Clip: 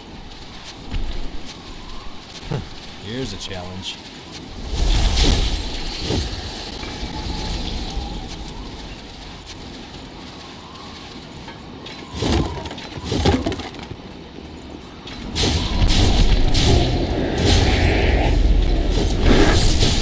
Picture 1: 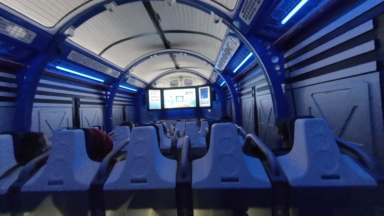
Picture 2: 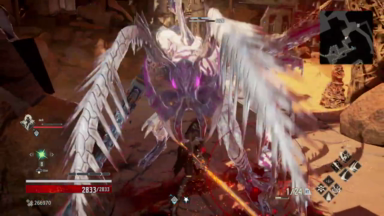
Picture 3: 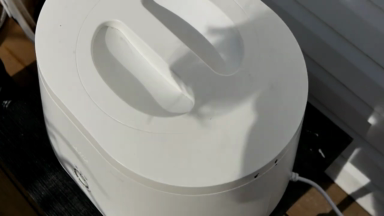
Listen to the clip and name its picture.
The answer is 2